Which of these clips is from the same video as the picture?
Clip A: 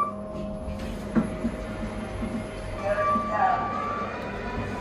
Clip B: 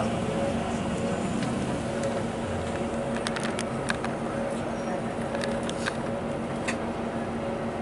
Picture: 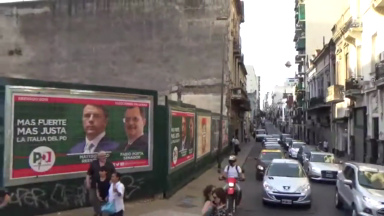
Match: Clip B